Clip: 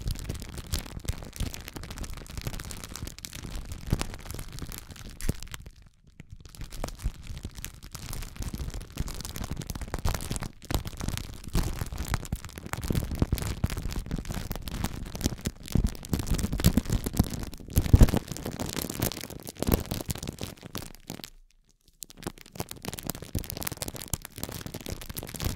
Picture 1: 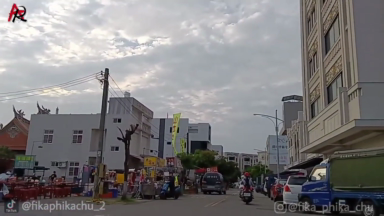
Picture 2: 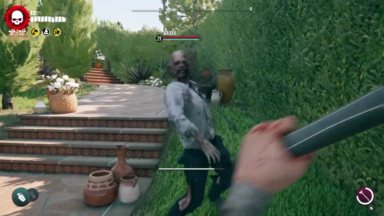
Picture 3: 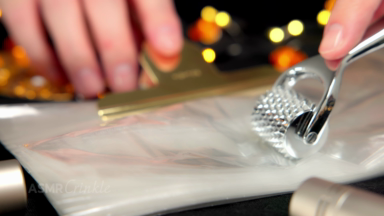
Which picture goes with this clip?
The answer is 3